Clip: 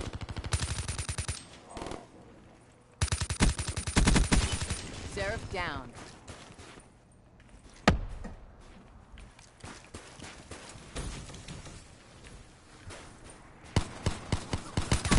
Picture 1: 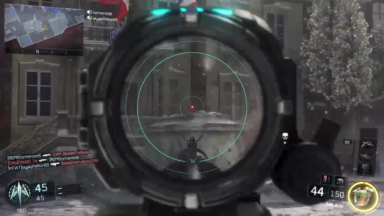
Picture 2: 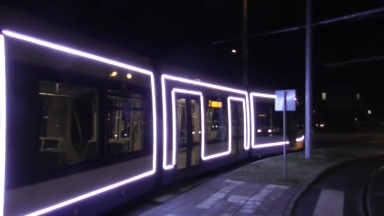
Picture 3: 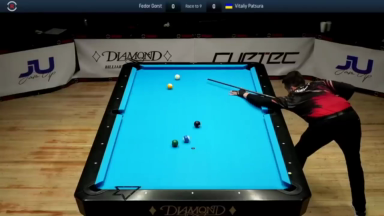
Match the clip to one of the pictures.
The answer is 1